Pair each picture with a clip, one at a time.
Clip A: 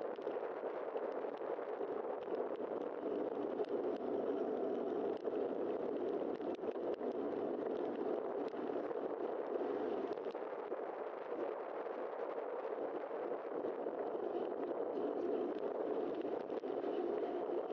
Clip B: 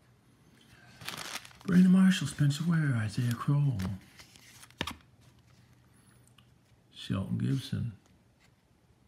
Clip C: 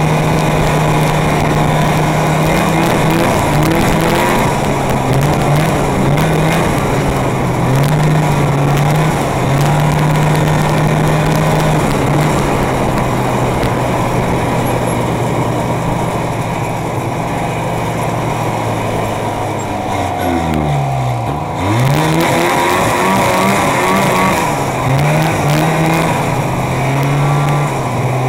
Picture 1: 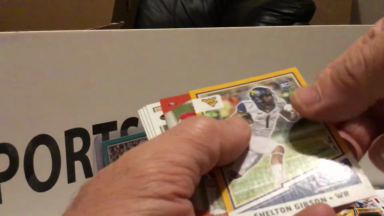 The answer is B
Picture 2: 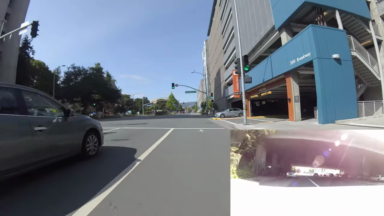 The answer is A